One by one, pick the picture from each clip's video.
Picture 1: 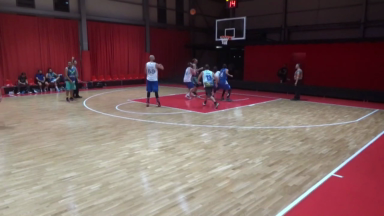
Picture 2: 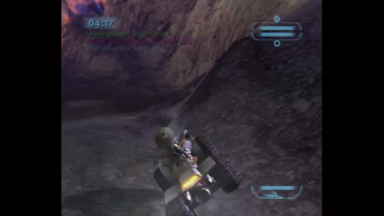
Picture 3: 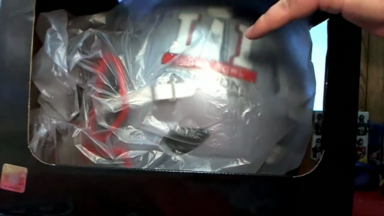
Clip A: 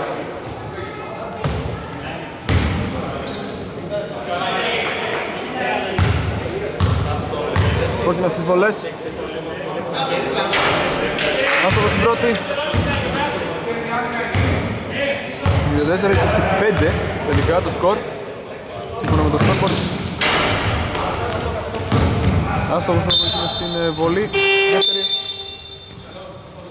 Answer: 1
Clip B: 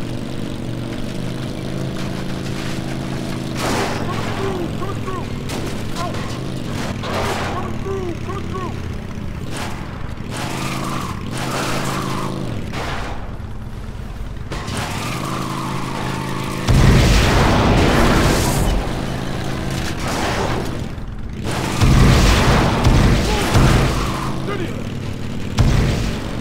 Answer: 2